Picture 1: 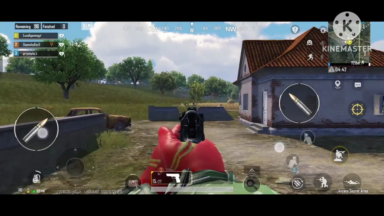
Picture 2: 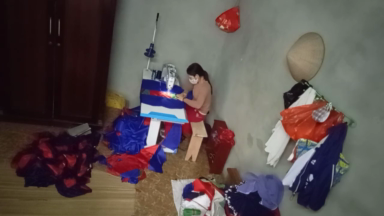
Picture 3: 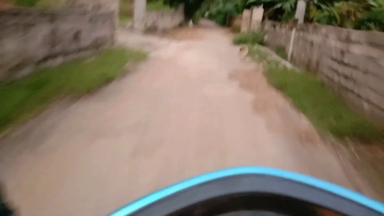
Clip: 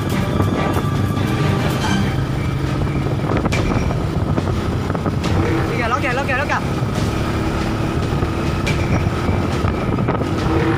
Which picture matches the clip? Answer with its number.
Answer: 3